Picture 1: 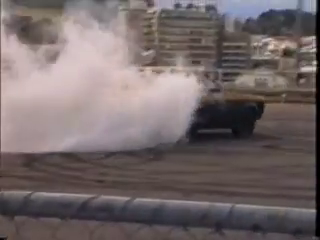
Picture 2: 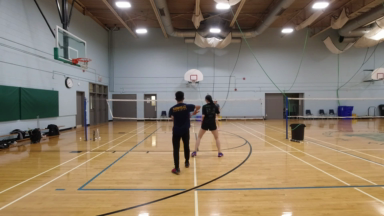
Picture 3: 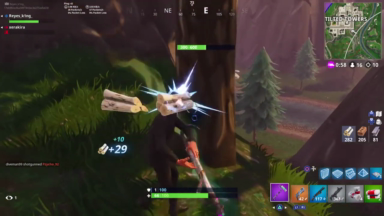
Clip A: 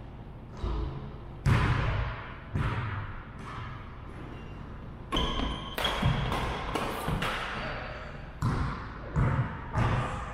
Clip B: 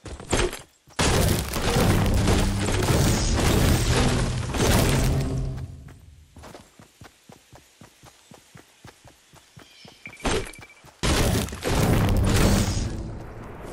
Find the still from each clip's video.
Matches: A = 2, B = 3